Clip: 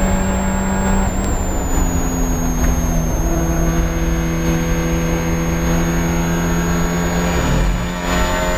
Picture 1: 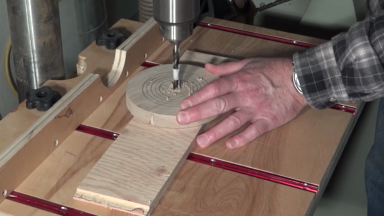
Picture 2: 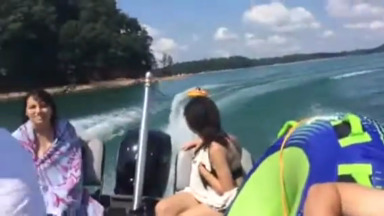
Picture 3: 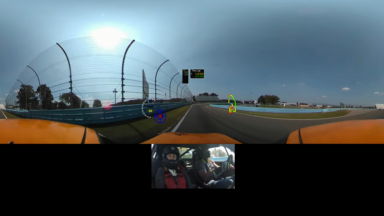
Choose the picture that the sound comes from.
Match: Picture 3